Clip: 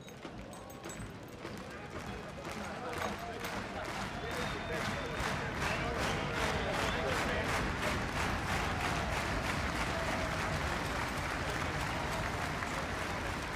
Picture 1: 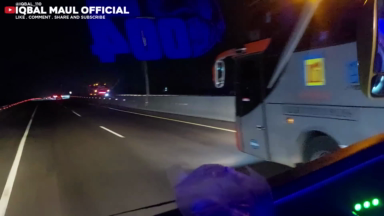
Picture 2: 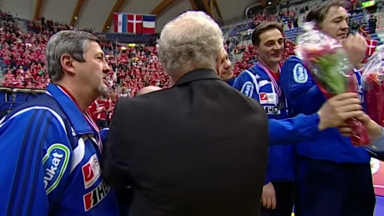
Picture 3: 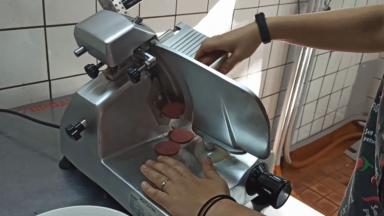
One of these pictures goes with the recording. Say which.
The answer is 2